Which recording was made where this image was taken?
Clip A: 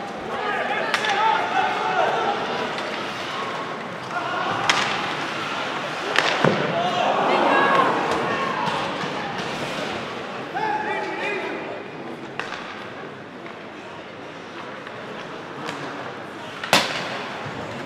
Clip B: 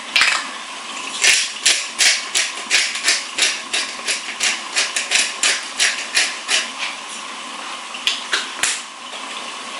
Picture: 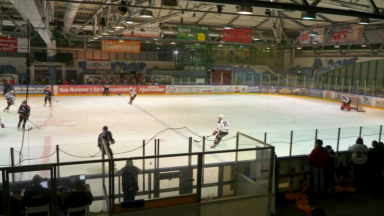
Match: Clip A